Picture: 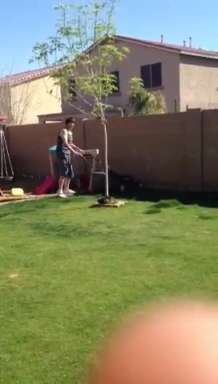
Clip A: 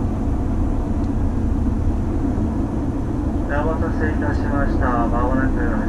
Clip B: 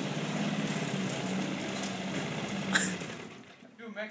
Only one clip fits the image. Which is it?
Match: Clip B